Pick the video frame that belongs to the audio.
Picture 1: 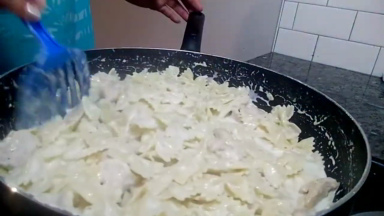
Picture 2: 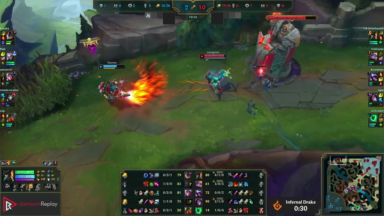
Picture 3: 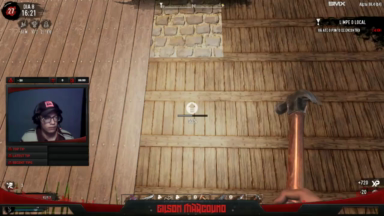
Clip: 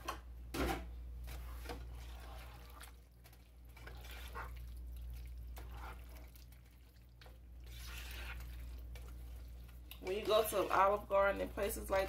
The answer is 1